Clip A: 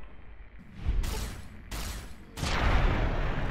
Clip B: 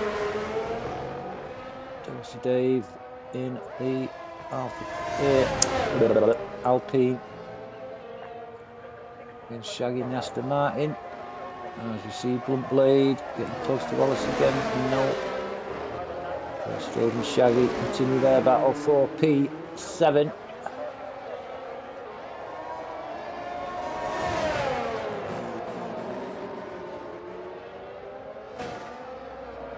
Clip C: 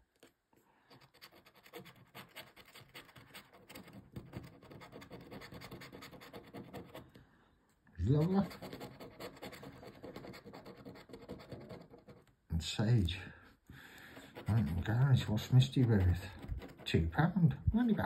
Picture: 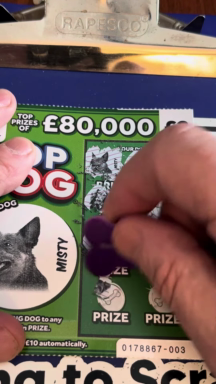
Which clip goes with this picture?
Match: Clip C